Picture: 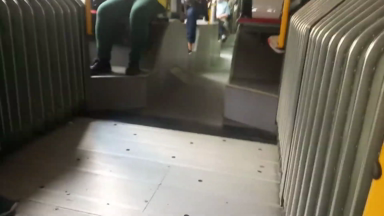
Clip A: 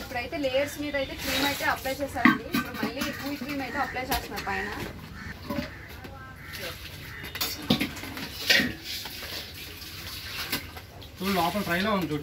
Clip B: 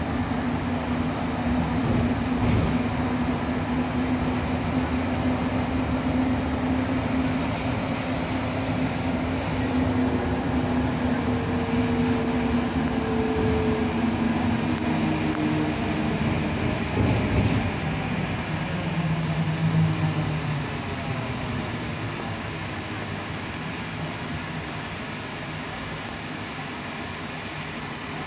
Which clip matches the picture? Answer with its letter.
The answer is B